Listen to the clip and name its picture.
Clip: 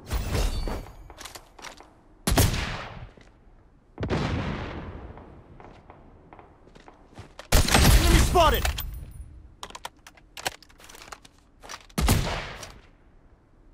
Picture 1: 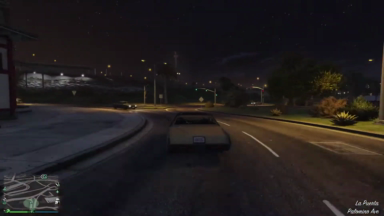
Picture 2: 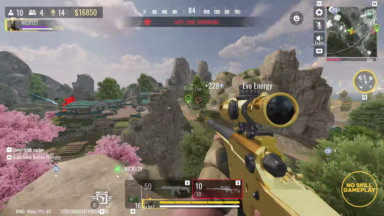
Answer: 2